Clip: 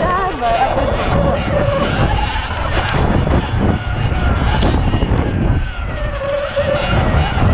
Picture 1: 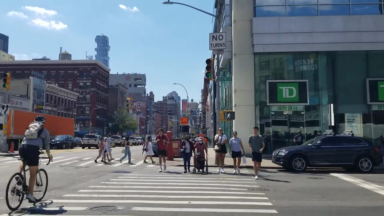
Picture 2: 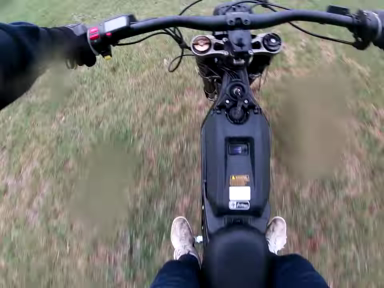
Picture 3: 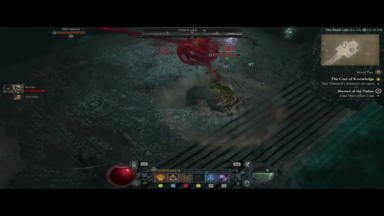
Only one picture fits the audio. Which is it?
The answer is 2